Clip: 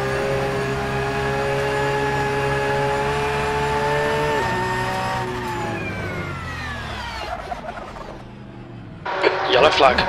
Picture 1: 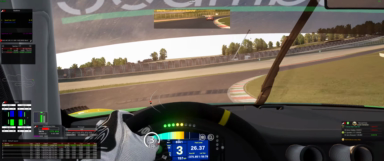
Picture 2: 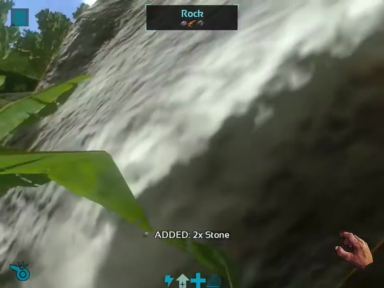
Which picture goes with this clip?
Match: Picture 1